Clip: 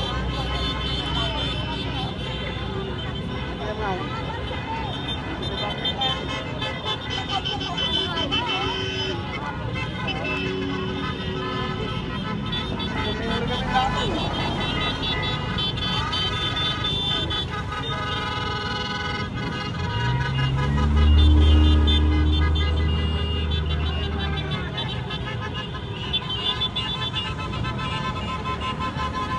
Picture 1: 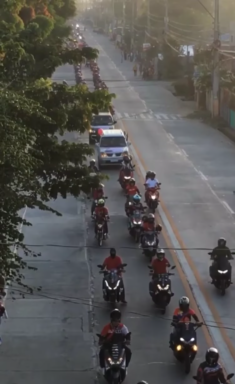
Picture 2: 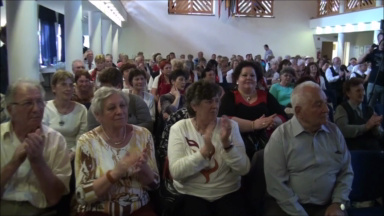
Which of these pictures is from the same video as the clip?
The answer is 1